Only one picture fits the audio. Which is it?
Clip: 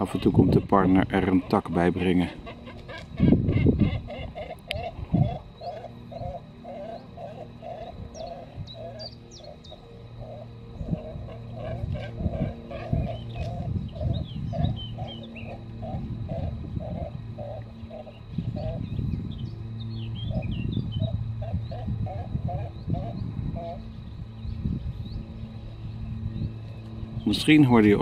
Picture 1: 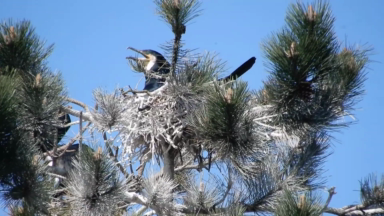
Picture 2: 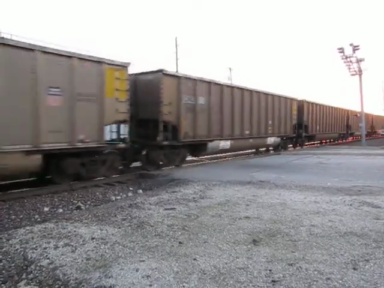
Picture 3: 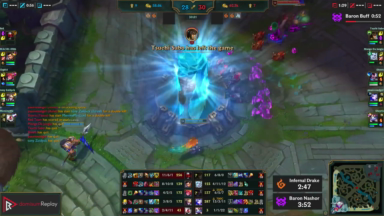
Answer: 1